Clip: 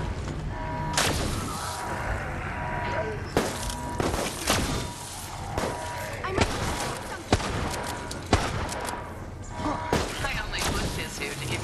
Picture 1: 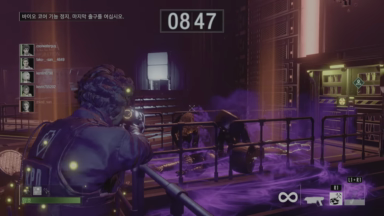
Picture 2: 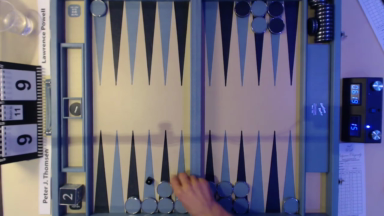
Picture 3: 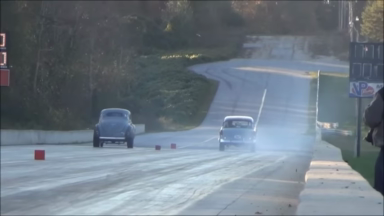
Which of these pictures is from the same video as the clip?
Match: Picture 1